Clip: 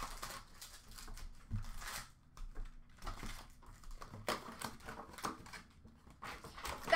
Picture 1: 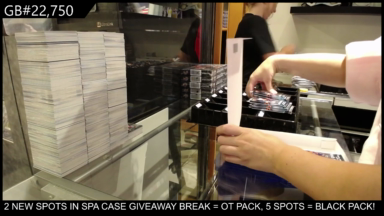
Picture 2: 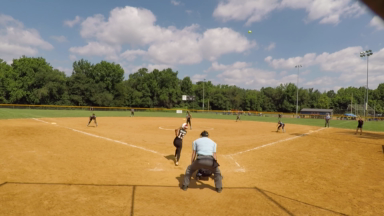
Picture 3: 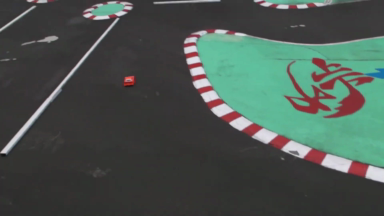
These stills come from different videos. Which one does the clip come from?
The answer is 1